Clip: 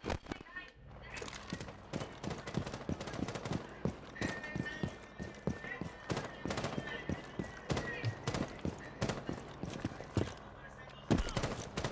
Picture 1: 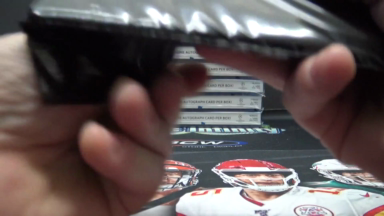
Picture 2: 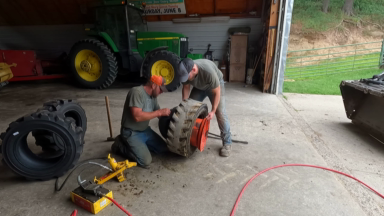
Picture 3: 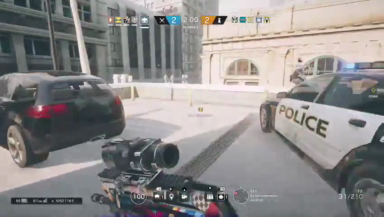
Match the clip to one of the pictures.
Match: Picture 3